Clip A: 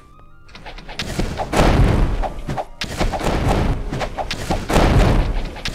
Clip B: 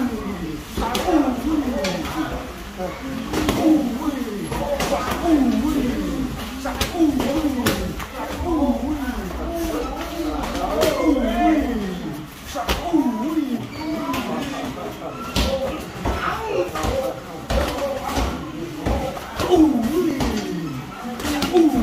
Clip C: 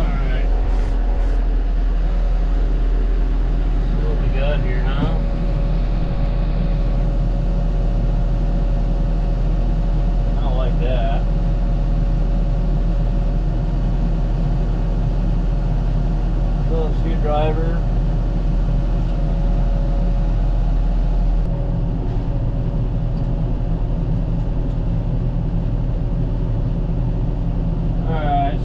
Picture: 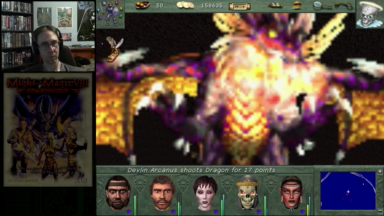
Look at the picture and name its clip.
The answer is A